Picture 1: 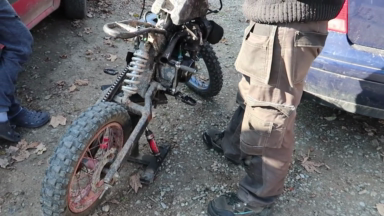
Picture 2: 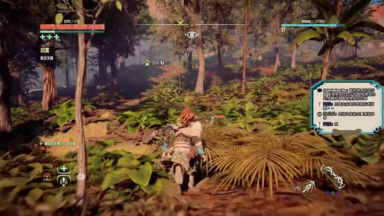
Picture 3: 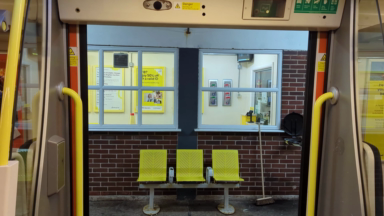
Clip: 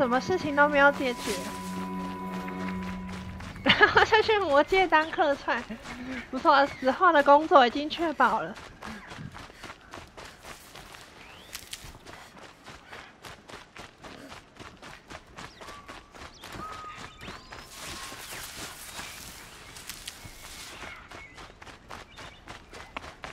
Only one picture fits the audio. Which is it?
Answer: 2